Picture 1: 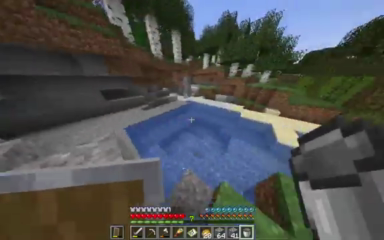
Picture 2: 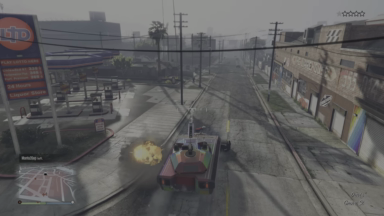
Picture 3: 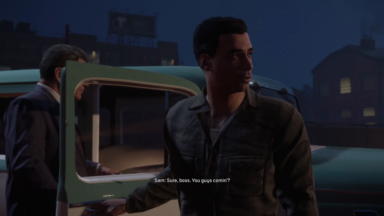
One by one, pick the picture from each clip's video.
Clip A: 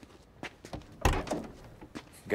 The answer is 3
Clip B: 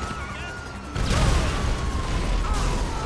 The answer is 2